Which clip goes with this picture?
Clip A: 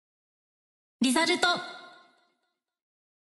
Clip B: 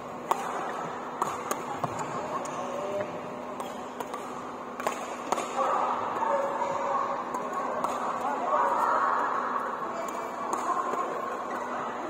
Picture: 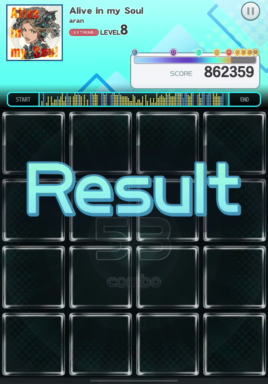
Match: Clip A